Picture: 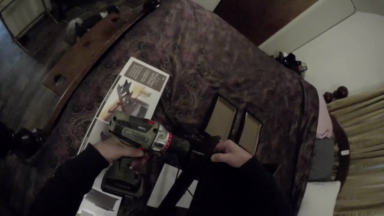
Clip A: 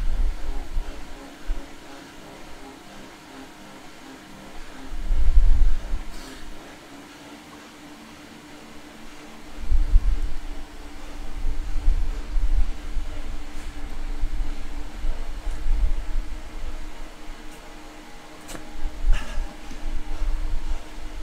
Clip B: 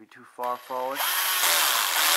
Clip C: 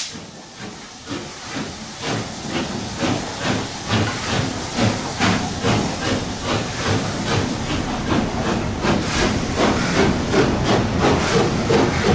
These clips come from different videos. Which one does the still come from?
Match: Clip B